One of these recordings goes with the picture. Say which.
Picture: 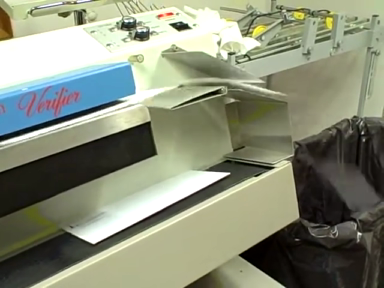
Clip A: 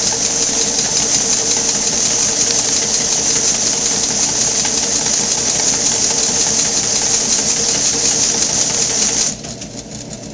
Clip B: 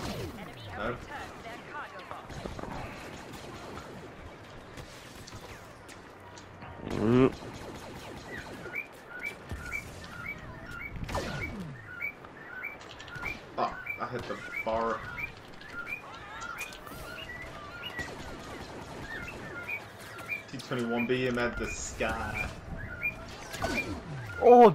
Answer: A